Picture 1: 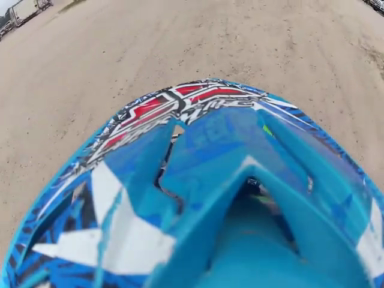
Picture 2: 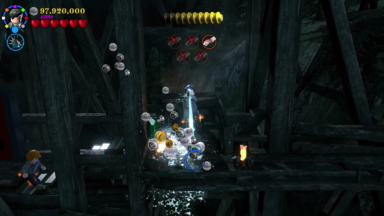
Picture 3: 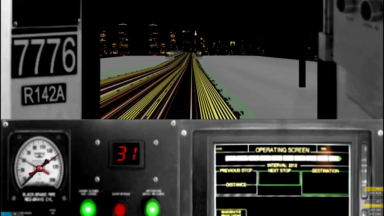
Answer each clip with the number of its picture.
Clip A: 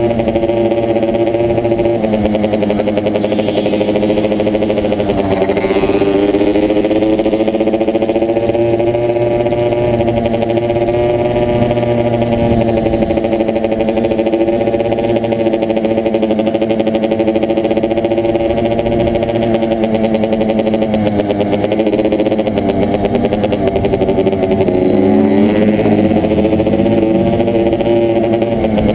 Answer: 1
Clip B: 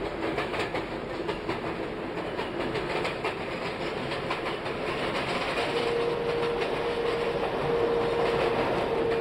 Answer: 3